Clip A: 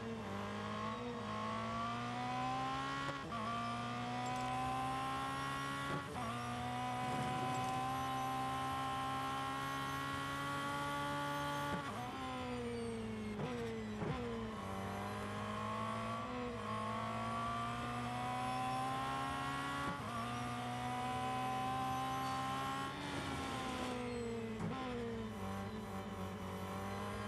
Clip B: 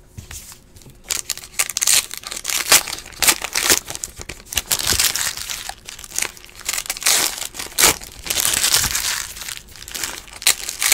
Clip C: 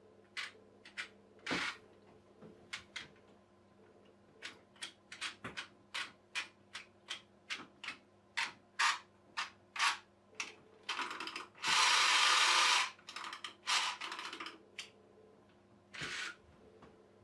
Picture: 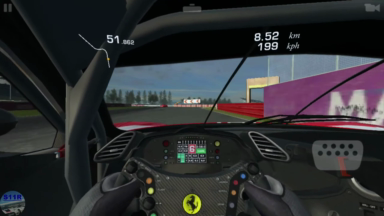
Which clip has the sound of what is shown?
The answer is A